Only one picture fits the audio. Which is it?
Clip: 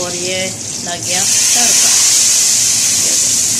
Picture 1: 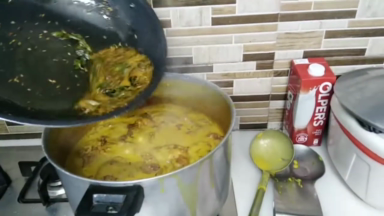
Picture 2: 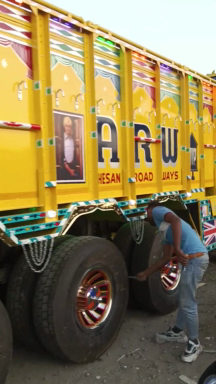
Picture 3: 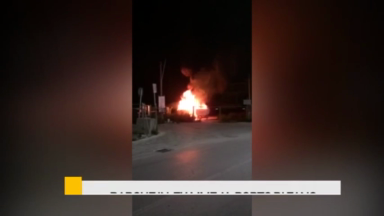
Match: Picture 1